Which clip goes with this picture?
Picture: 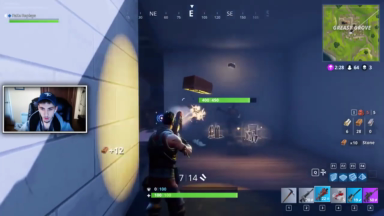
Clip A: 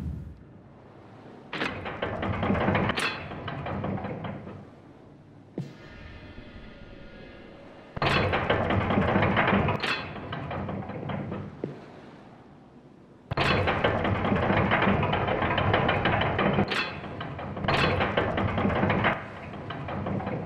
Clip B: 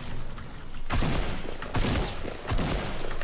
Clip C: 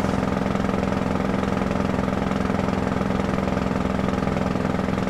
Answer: B